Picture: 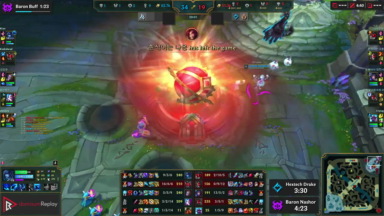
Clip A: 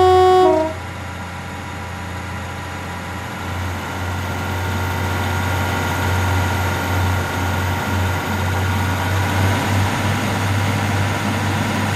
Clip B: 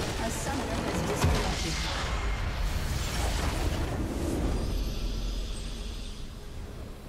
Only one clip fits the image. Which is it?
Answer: B